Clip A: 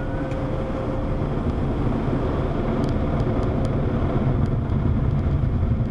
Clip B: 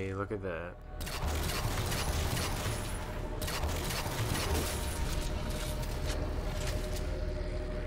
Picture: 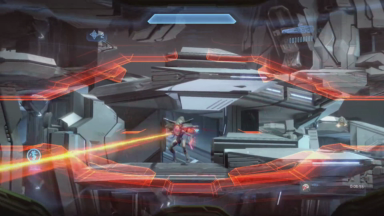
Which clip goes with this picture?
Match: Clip B